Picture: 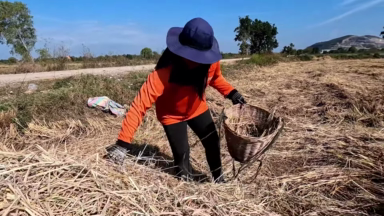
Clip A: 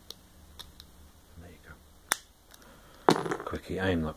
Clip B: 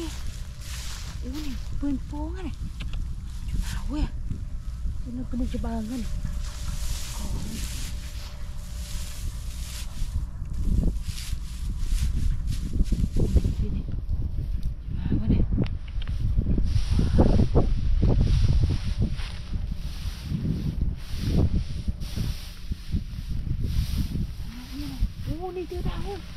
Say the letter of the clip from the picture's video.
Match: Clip B